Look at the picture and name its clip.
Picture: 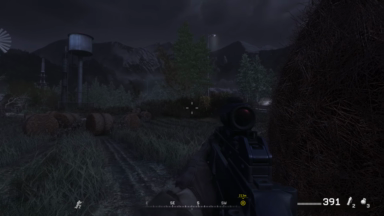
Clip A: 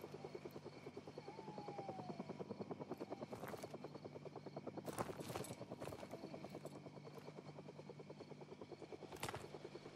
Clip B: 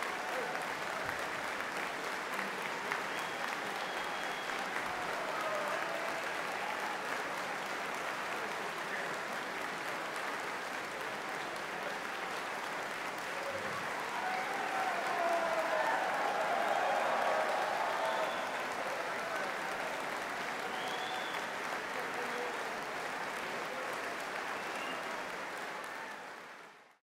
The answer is A